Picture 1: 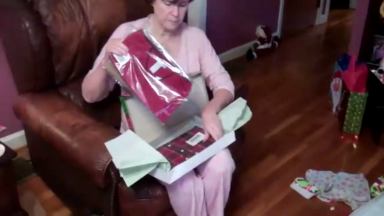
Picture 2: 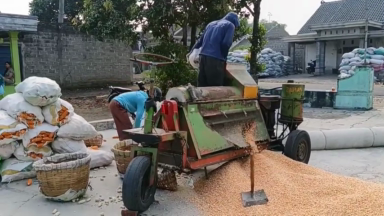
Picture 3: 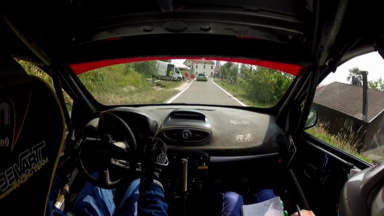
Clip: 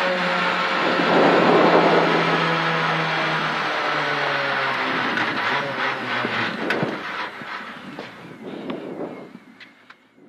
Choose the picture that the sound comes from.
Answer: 3